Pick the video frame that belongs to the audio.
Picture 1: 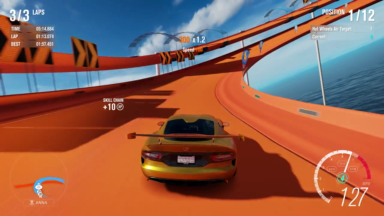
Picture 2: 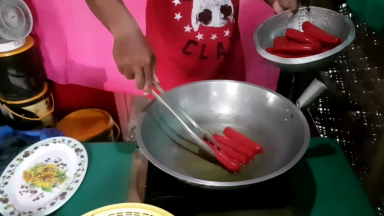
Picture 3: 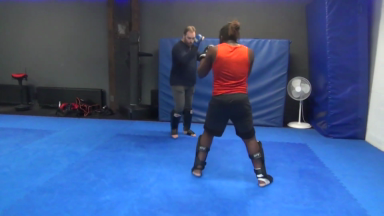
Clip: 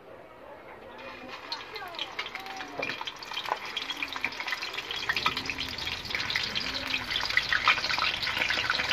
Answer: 2